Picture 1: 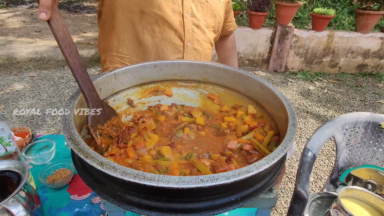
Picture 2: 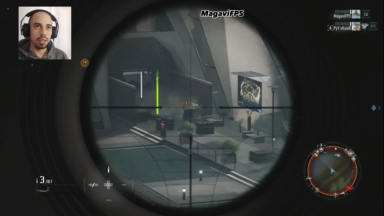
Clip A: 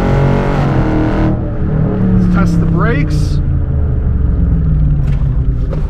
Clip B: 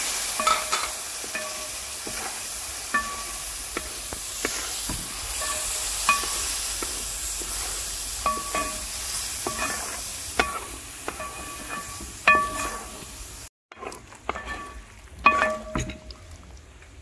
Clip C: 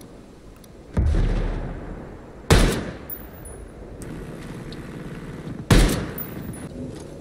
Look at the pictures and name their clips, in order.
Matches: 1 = B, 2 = C